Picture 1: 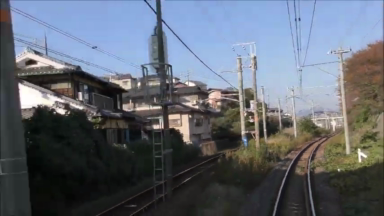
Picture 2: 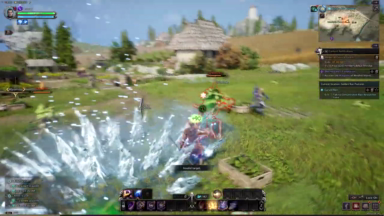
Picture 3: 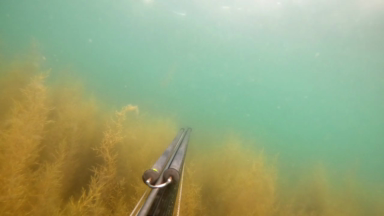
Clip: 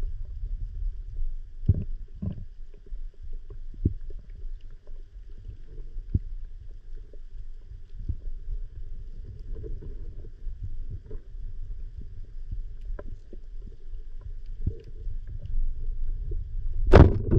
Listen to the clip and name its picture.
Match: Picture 3